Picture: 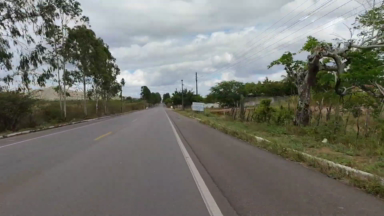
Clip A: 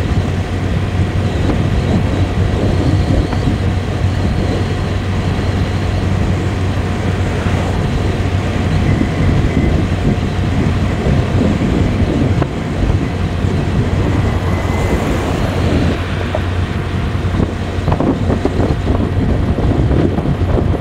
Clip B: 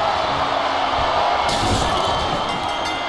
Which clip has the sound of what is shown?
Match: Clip A